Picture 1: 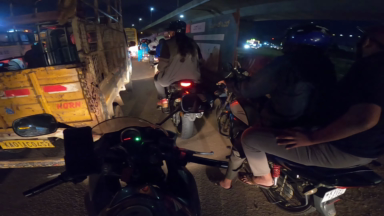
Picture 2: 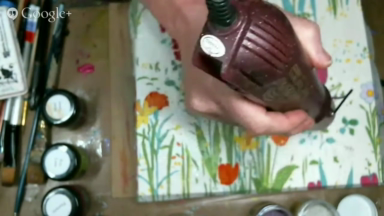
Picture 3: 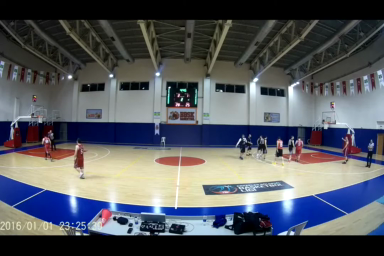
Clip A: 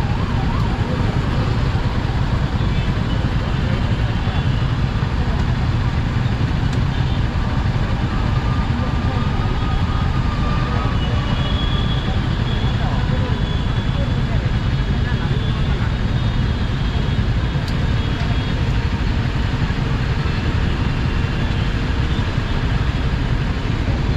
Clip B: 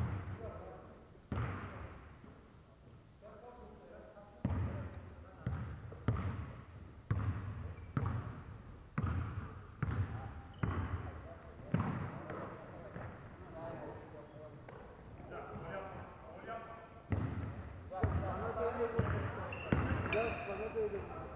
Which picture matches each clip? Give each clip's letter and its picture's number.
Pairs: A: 1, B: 3